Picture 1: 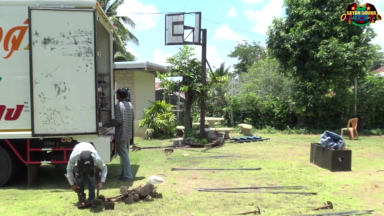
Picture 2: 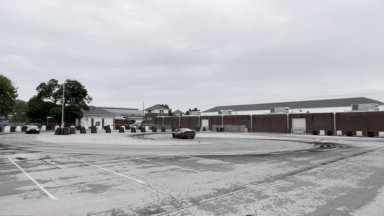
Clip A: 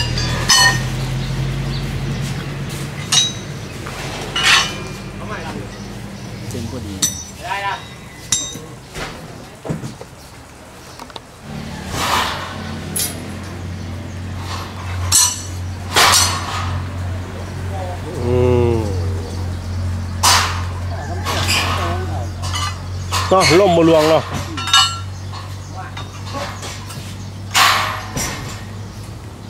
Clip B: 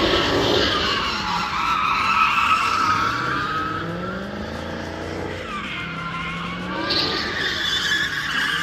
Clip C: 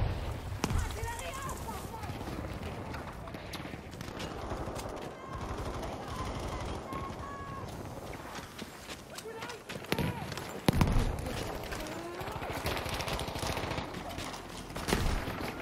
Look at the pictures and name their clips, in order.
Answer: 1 A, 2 B